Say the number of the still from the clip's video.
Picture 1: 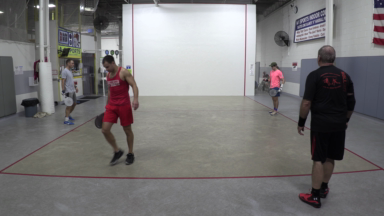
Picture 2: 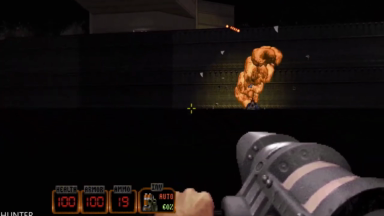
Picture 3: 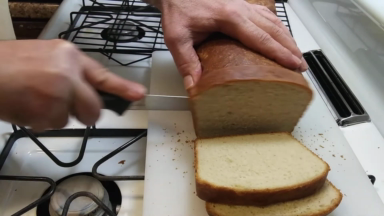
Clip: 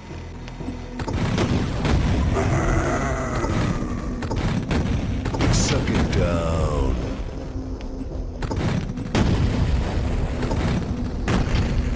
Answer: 2